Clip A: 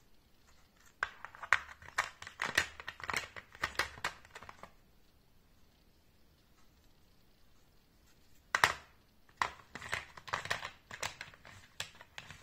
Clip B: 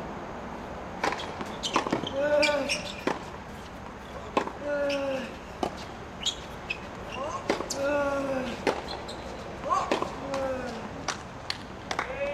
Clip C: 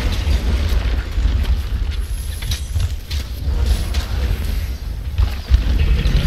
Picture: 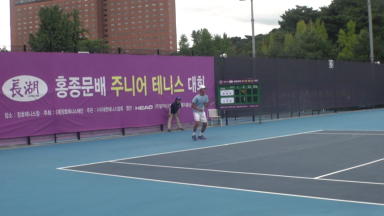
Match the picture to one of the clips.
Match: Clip B